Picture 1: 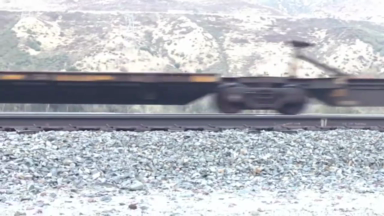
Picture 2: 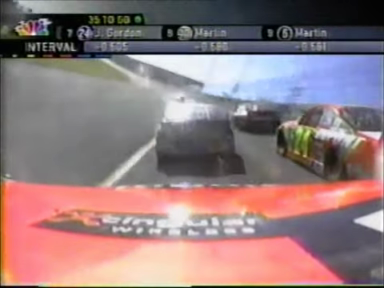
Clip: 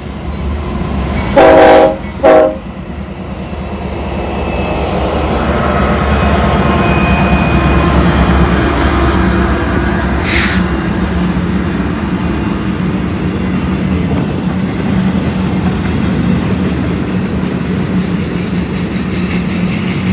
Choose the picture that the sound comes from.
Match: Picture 1